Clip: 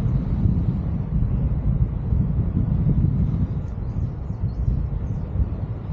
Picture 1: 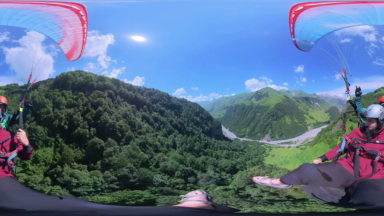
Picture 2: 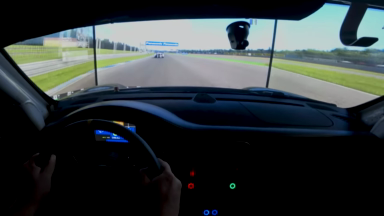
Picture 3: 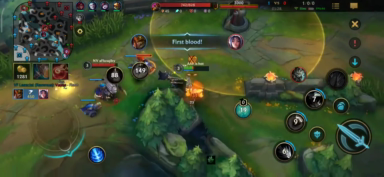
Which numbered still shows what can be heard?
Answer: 1